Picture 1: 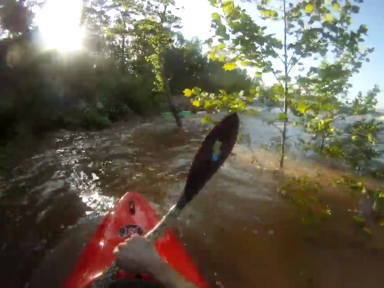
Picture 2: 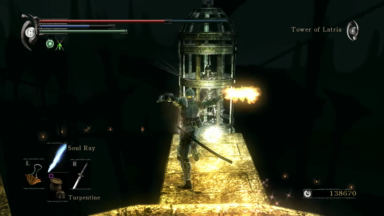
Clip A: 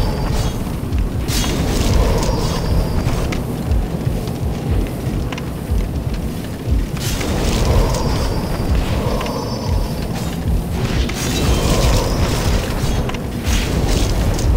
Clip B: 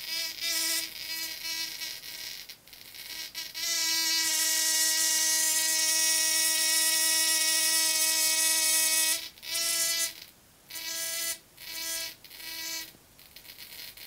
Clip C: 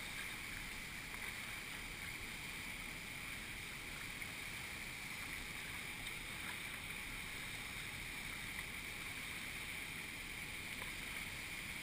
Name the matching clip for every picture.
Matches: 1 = C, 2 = A